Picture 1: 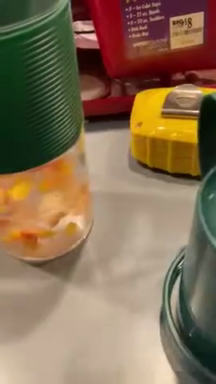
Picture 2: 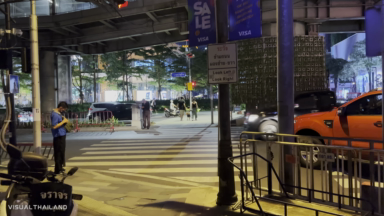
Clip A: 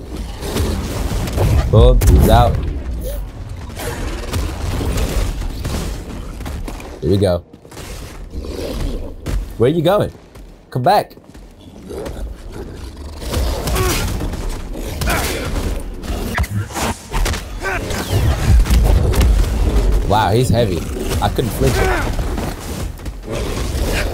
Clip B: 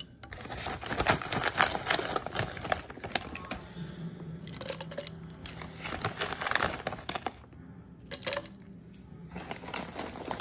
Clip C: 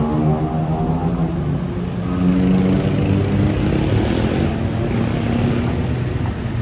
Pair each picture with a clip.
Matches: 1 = B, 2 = C